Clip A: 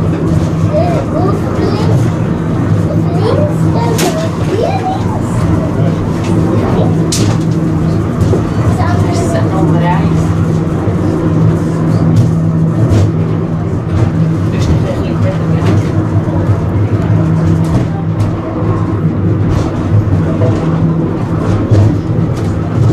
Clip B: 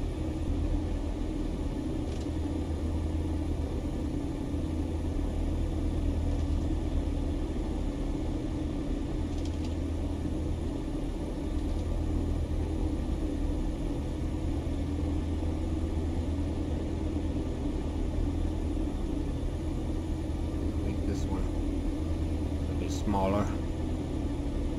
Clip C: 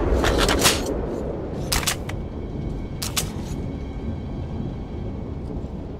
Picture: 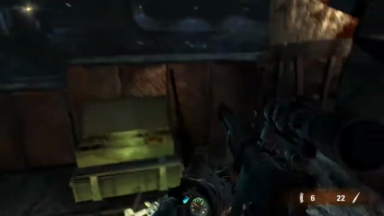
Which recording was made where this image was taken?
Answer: C